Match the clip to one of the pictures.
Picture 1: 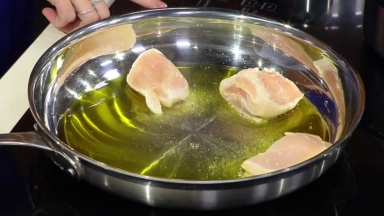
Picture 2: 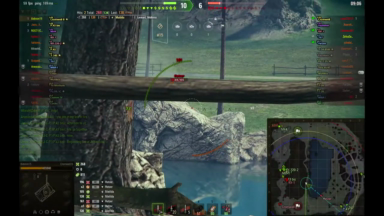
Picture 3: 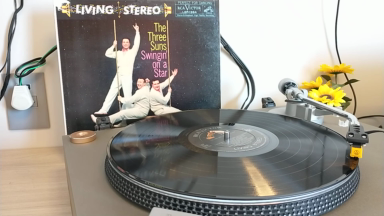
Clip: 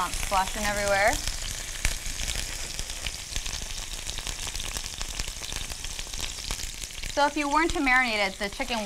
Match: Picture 1